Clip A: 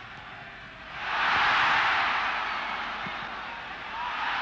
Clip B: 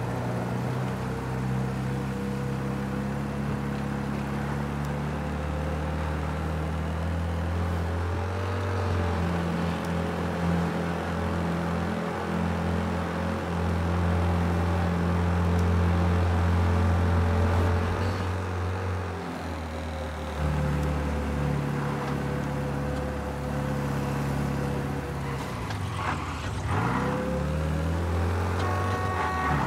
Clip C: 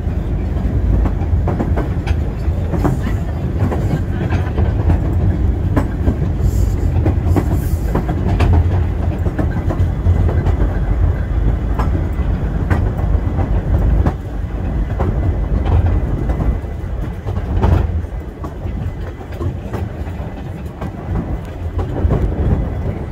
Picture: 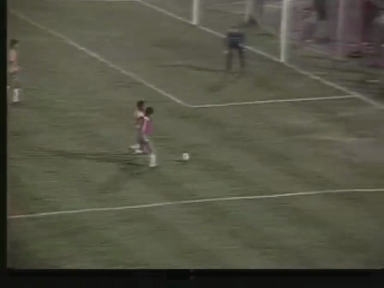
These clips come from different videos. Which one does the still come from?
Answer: A